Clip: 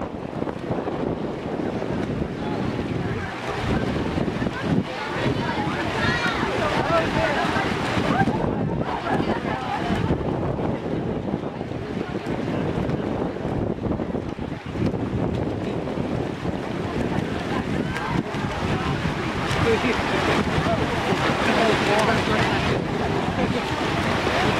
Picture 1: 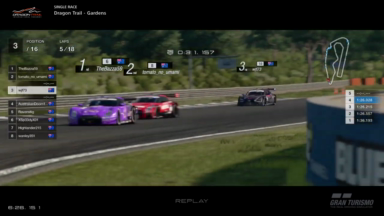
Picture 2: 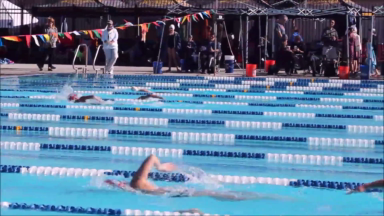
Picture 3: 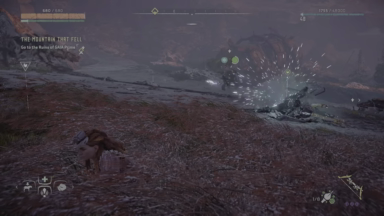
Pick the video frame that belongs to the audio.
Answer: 2